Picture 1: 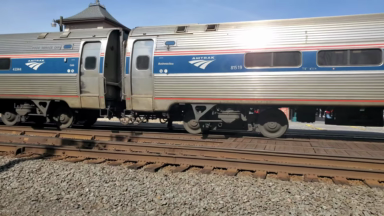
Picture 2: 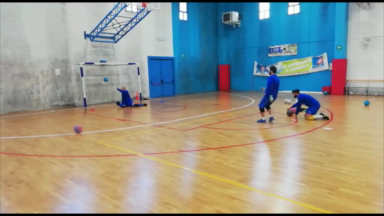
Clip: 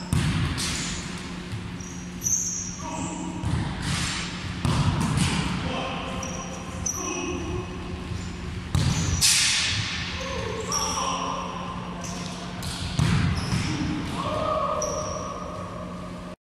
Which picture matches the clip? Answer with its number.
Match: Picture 2